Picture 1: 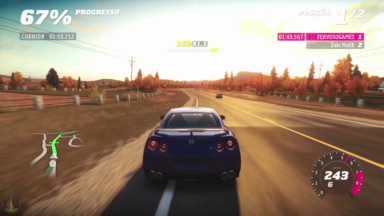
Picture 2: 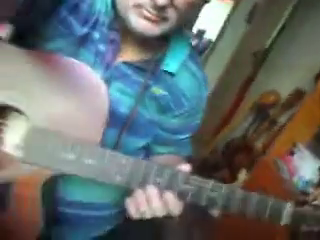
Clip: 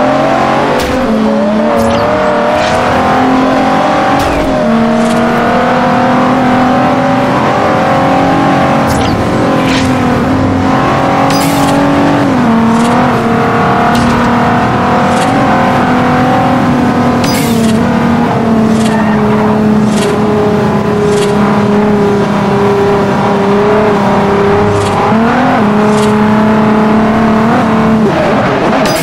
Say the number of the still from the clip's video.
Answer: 1